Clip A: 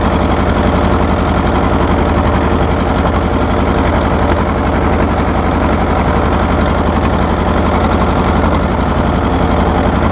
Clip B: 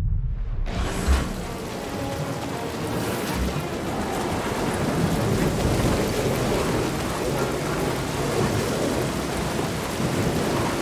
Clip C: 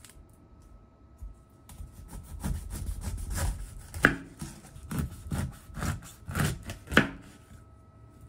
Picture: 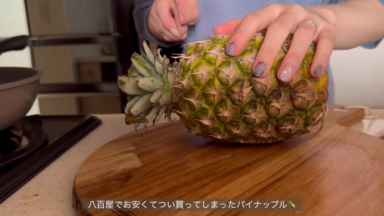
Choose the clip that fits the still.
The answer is C